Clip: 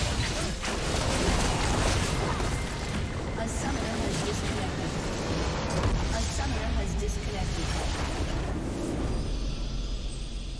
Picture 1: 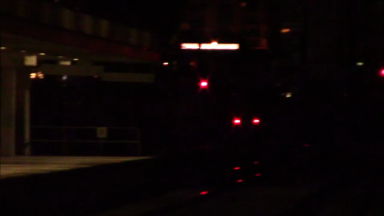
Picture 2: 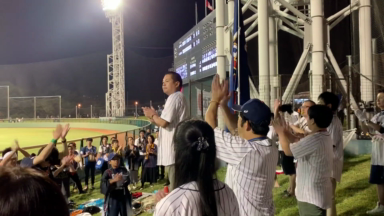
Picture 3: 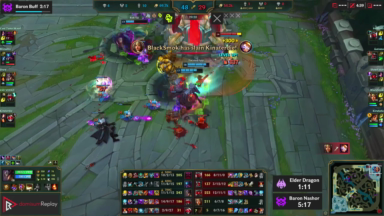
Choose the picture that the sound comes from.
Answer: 3